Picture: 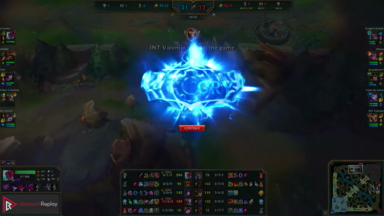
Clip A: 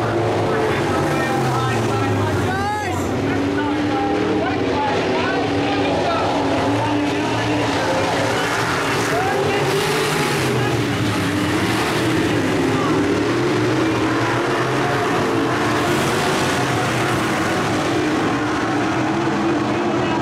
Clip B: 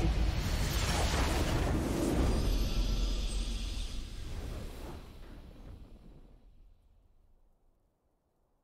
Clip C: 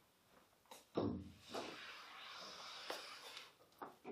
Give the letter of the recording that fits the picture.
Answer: B